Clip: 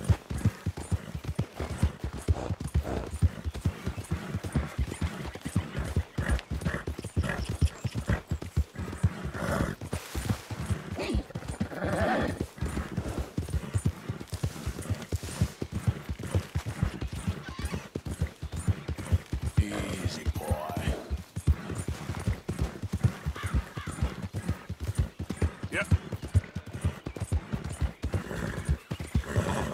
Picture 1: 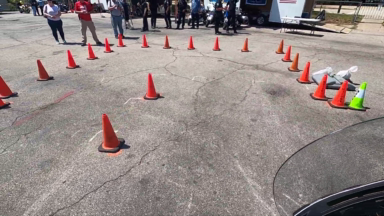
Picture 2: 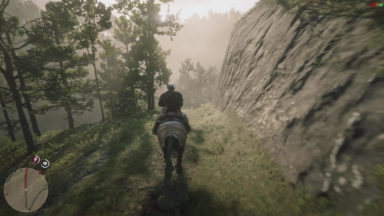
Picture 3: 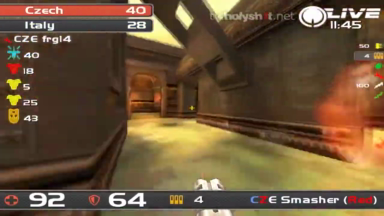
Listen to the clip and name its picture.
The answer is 2